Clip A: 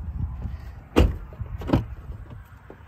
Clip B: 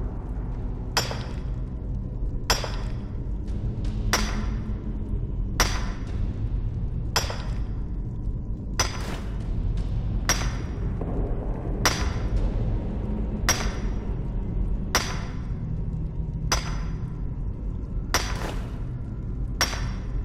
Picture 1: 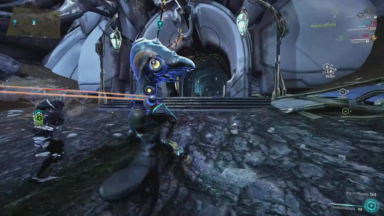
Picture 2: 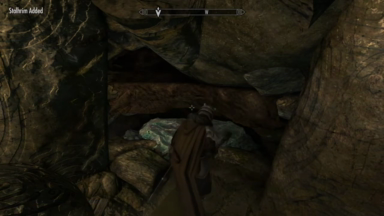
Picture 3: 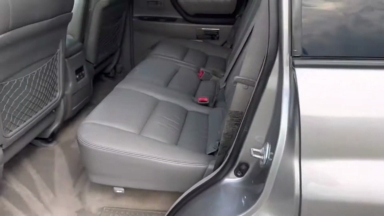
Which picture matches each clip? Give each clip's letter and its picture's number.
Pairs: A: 3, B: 2